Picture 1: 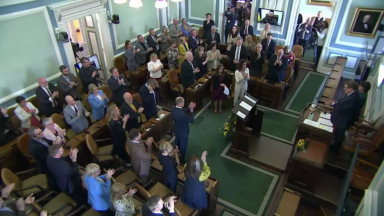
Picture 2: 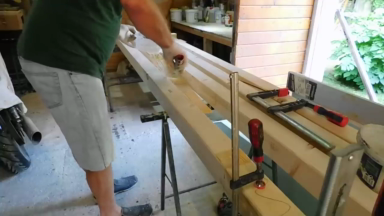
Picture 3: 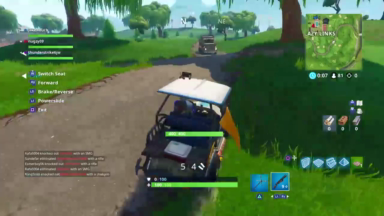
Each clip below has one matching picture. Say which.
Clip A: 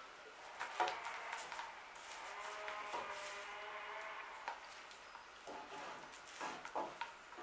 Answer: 2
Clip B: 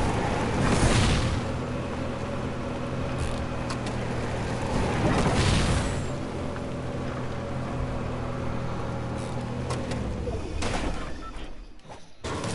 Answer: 3